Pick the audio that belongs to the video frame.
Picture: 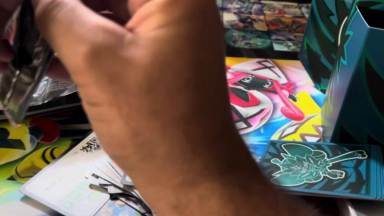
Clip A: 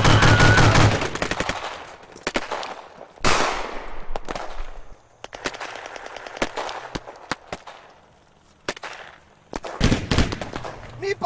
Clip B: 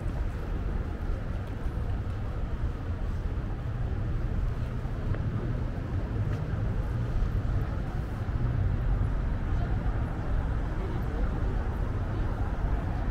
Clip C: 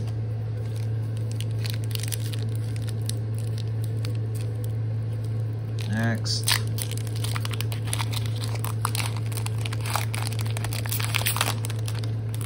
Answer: C